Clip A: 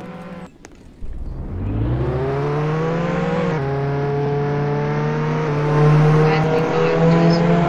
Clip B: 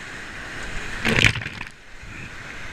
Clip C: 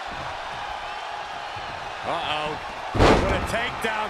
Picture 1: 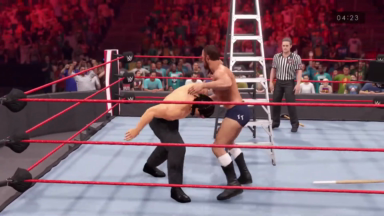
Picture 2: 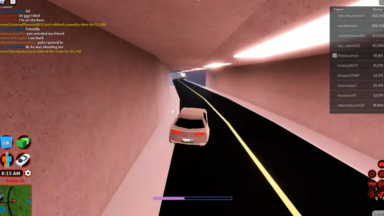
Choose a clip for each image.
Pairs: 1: C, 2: A